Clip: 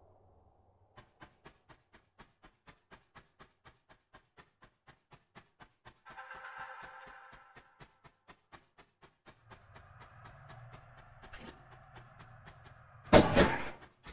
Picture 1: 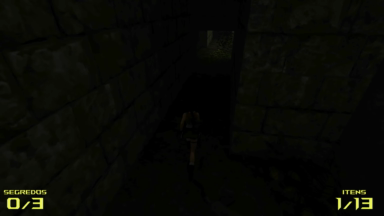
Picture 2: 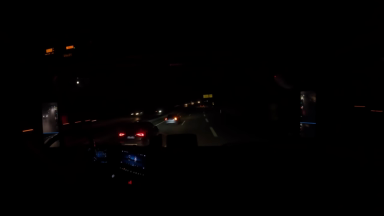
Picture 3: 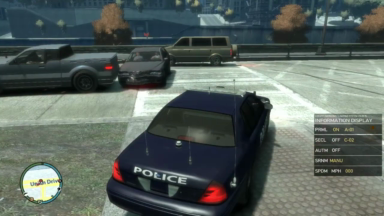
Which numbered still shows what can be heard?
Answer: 1